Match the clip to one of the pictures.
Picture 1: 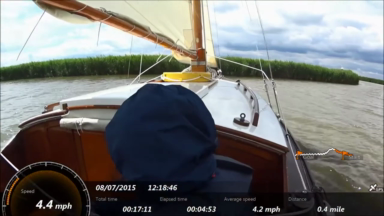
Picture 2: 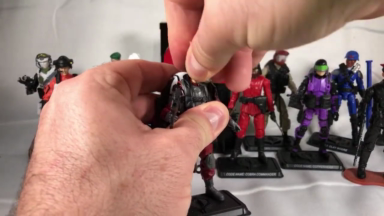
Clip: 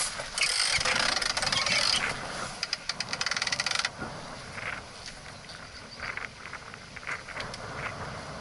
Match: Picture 1